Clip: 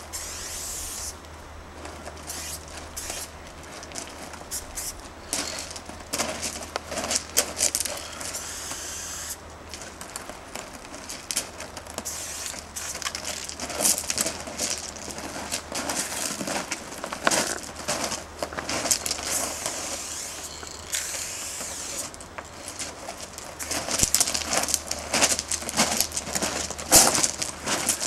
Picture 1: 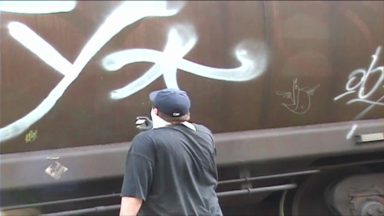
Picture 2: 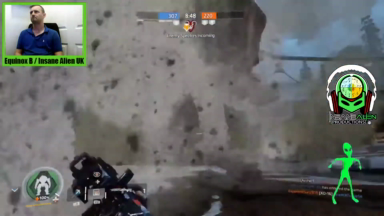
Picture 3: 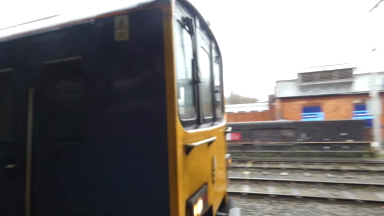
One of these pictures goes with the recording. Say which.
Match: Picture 1